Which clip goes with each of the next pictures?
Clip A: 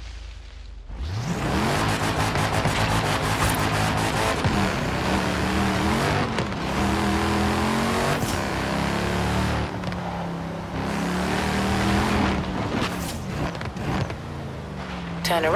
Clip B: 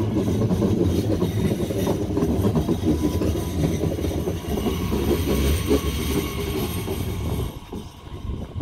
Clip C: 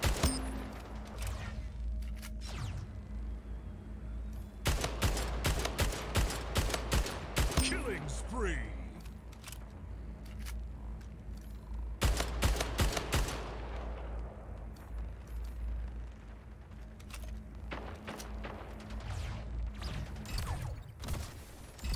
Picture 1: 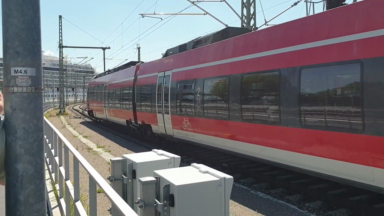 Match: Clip B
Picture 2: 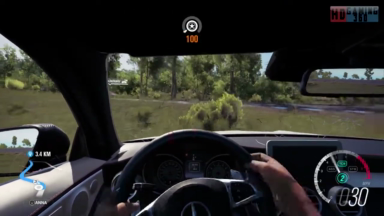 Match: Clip A